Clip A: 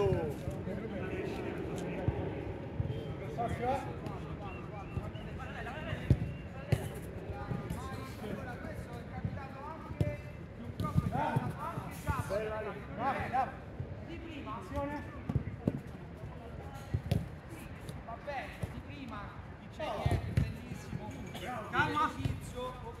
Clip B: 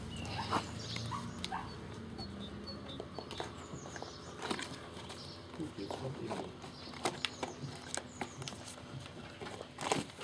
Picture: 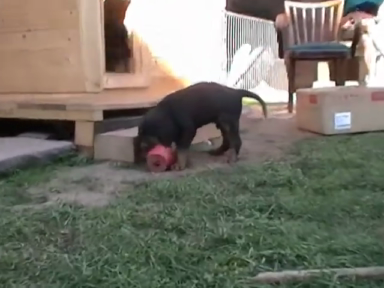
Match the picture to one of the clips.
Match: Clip B